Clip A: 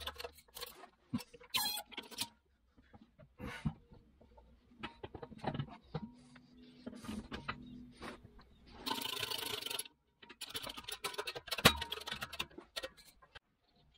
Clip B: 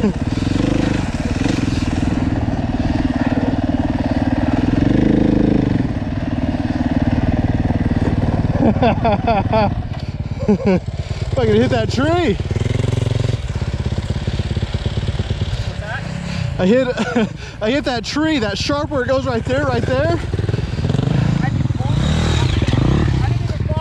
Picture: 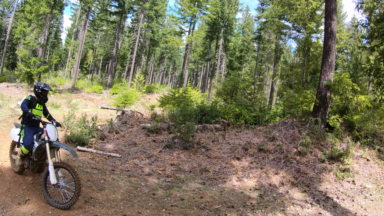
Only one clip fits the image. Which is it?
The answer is B